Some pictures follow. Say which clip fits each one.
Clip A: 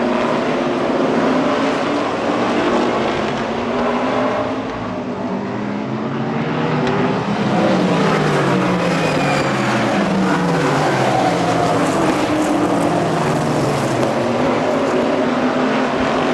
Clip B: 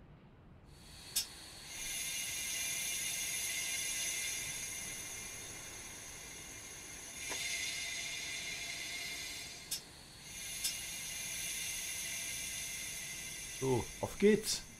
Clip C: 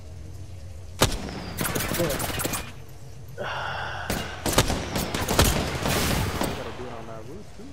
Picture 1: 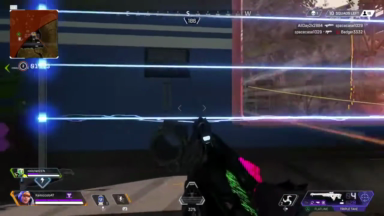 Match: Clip C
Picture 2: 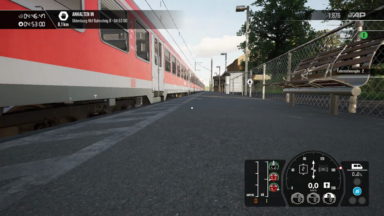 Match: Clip B